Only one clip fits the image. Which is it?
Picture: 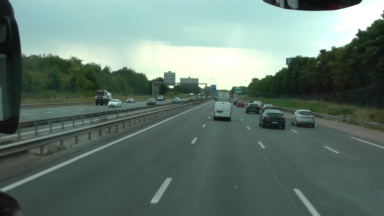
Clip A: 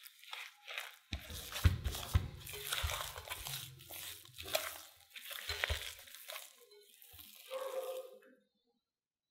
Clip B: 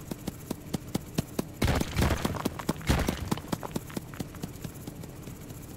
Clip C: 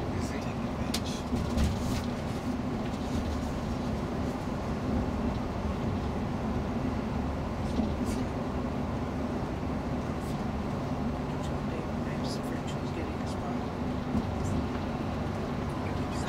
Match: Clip C